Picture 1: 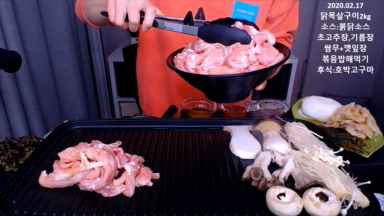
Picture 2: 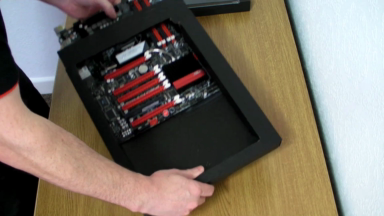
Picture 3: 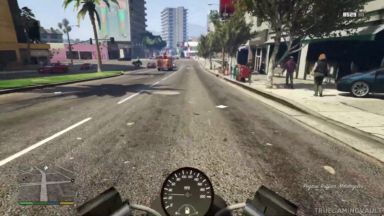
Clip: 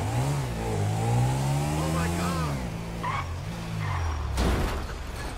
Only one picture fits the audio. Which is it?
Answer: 3